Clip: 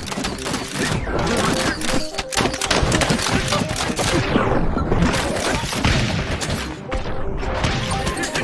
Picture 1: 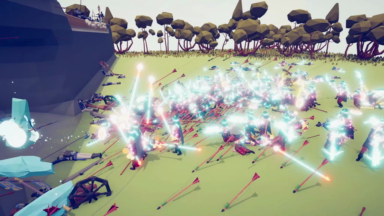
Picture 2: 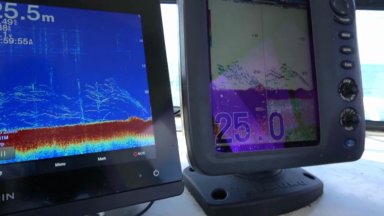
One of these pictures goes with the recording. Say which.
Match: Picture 1